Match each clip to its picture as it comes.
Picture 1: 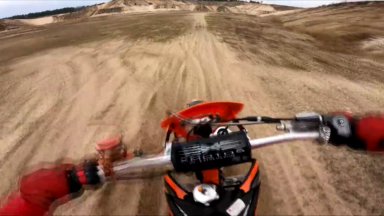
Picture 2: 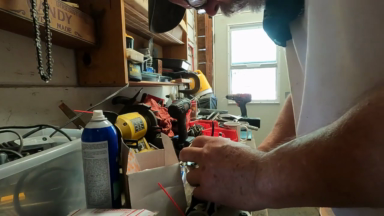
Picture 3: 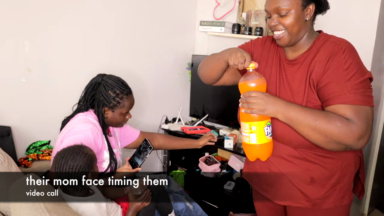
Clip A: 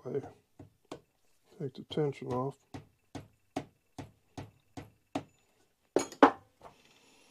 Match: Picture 2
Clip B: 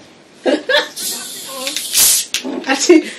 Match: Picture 3